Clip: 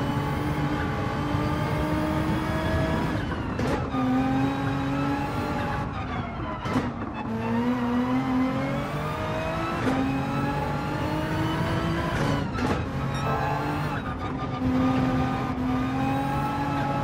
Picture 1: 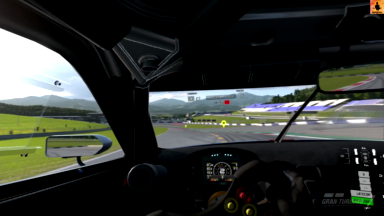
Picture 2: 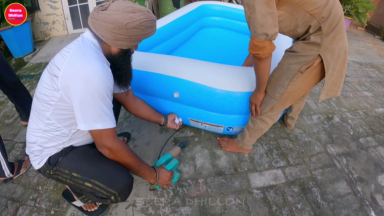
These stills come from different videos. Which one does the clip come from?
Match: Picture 1